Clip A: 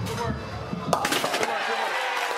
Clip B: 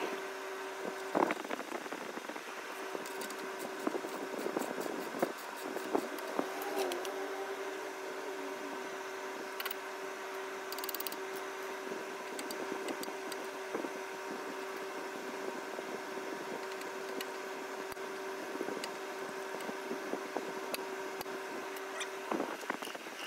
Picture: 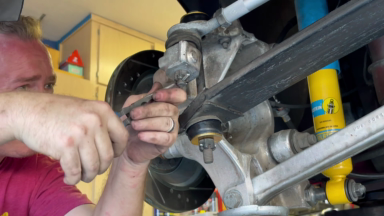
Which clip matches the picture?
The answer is B